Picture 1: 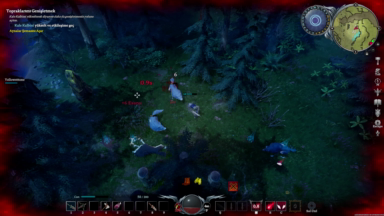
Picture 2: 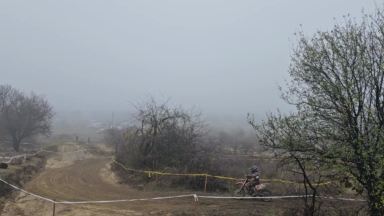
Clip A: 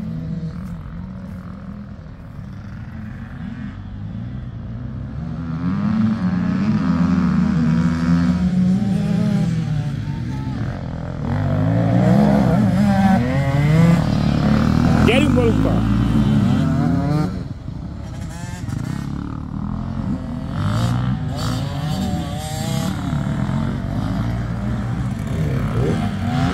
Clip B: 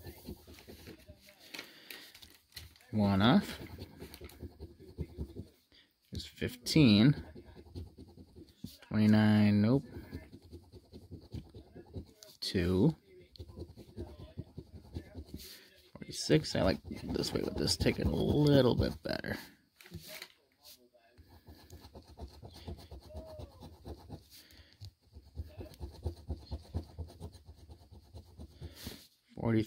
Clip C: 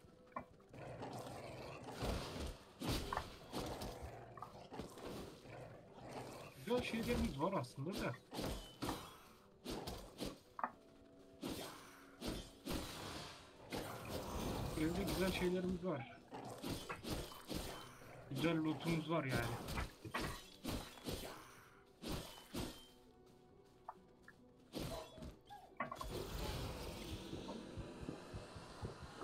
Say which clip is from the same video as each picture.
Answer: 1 C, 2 A